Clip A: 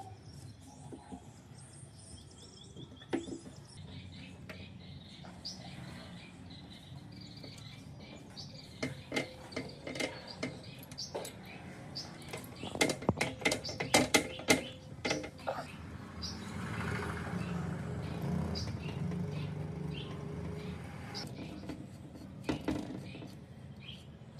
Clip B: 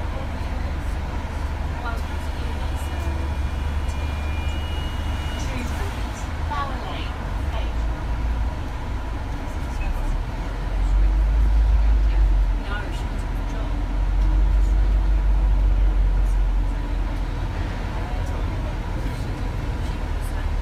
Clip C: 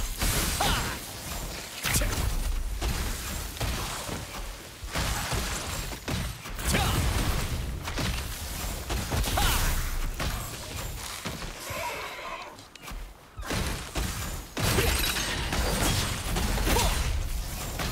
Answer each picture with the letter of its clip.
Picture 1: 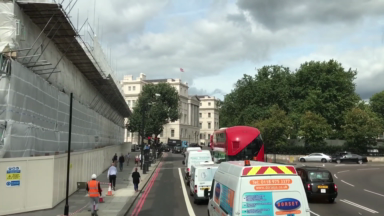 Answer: B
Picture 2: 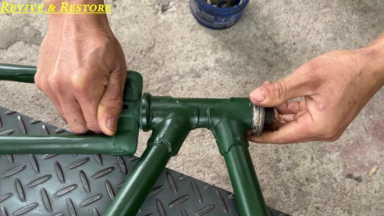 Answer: A